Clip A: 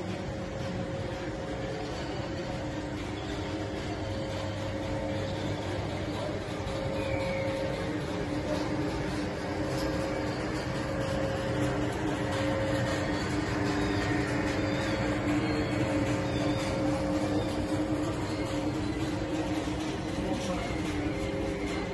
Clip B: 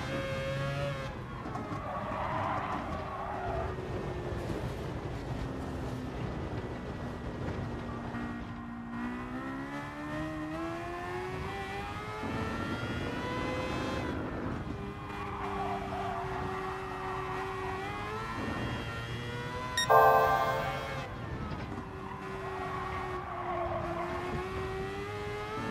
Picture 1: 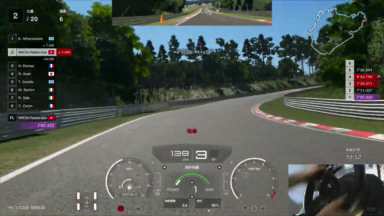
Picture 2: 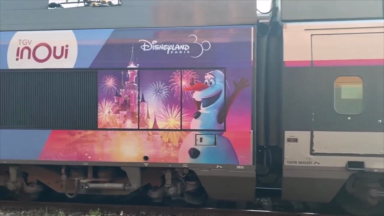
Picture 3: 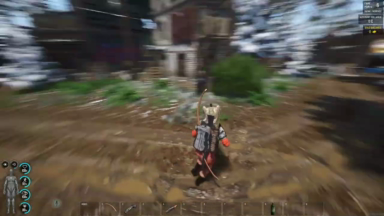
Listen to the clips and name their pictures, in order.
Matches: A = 2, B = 1